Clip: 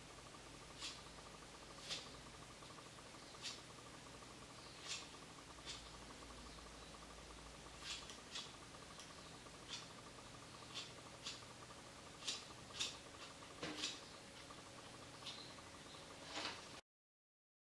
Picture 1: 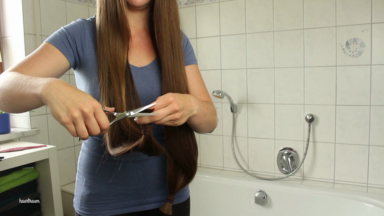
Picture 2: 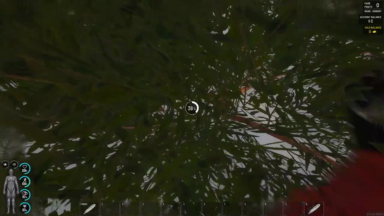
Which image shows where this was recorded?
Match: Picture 1